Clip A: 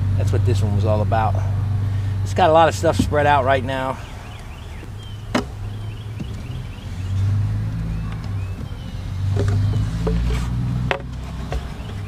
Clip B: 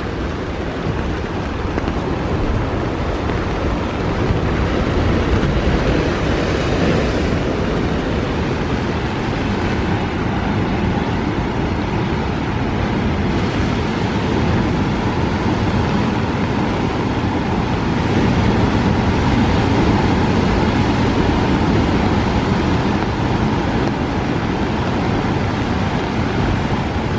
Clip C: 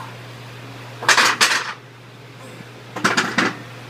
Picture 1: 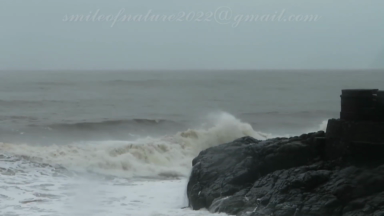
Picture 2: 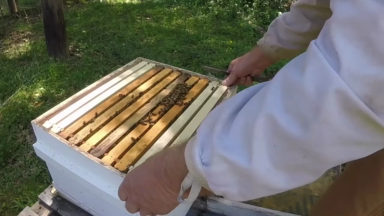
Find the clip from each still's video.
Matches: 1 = B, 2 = A